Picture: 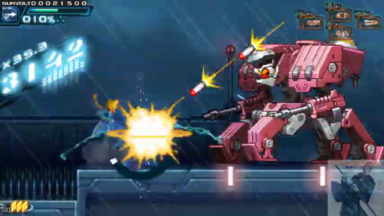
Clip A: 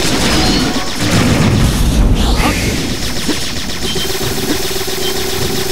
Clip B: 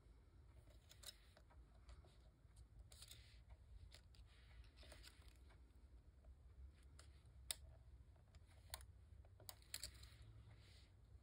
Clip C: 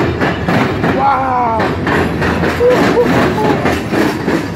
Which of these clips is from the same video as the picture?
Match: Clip A